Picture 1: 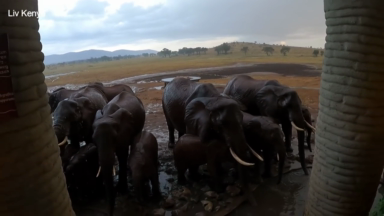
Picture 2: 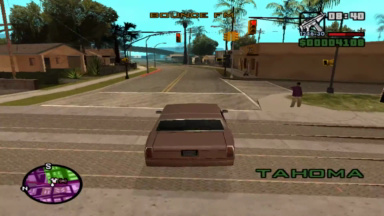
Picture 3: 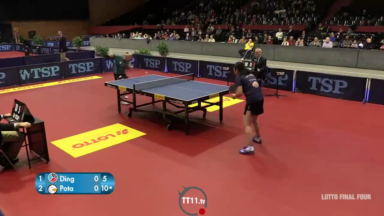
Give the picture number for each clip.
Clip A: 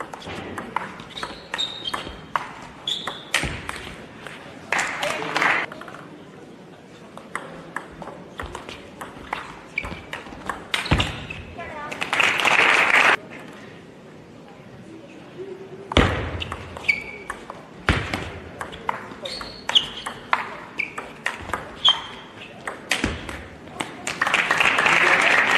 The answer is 3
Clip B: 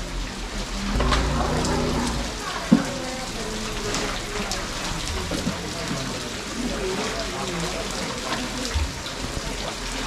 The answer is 1